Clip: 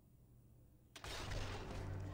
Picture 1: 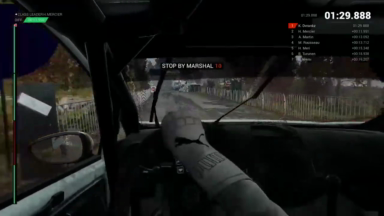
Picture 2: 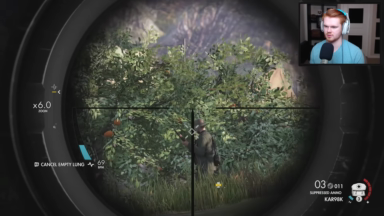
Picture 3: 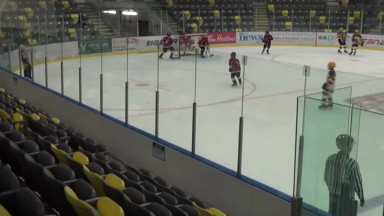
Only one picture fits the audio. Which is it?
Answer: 2